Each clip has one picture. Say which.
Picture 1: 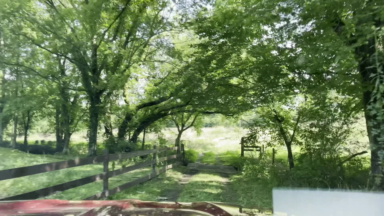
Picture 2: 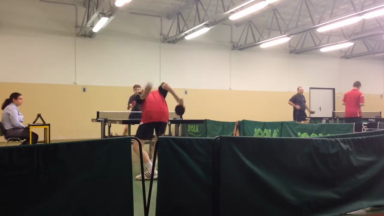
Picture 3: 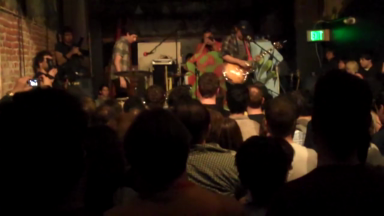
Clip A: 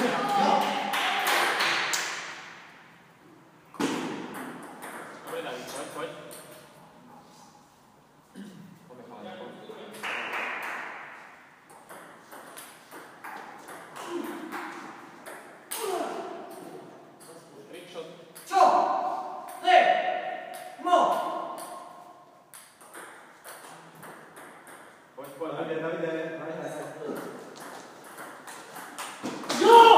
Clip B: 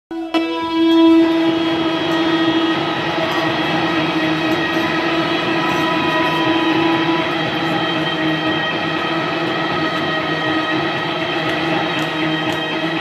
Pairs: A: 2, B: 3